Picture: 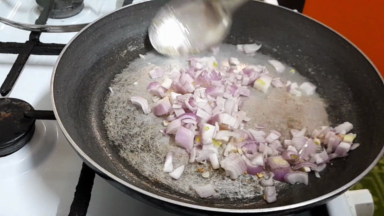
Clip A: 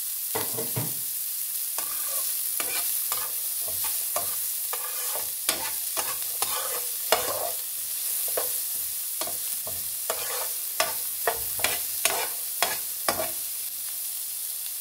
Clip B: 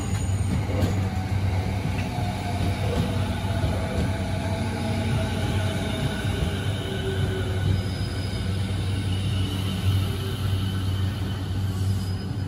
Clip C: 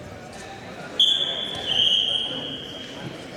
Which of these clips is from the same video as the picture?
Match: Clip A